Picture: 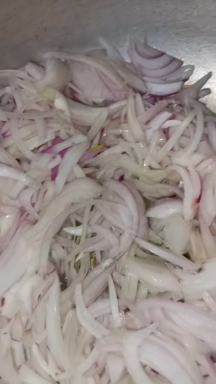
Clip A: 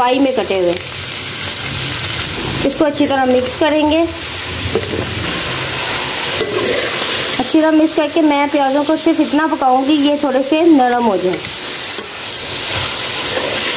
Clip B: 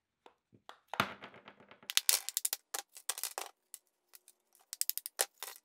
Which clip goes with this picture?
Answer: A